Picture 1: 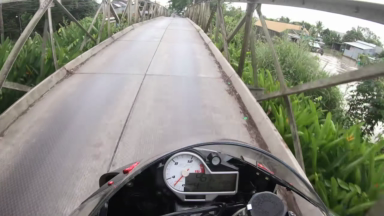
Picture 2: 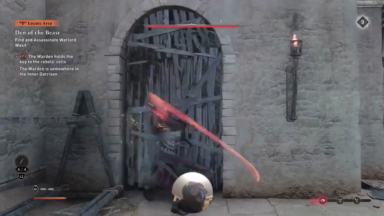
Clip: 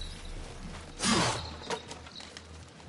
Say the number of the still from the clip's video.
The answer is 2